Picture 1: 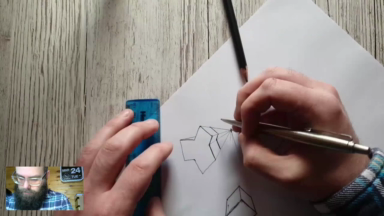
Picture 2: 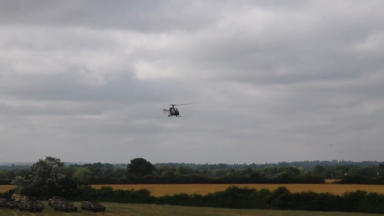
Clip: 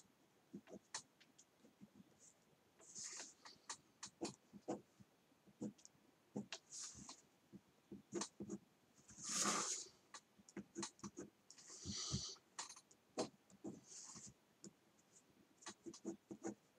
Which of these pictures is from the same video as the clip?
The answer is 1